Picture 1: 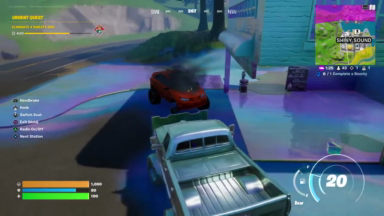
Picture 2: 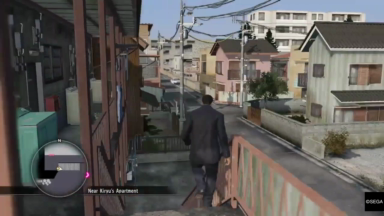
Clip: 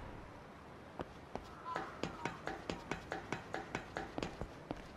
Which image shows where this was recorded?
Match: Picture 2